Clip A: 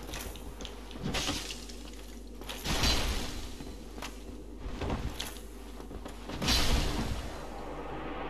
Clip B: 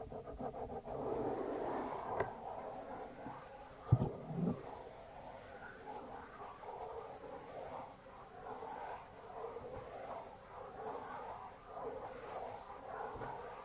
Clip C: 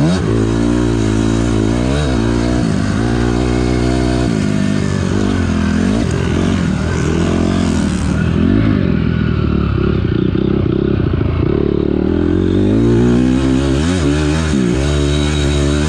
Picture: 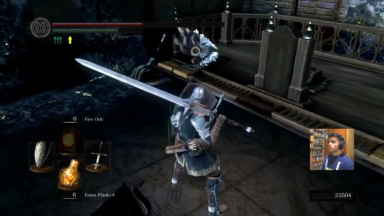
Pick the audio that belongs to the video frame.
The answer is A